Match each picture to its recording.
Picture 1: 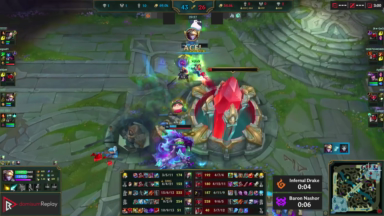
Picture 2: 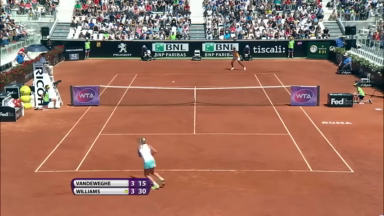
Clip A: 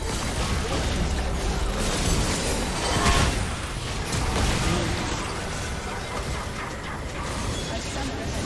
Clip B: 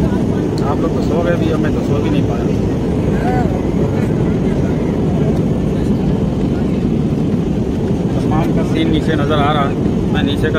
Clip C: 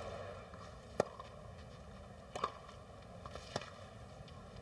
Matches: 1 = A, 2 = C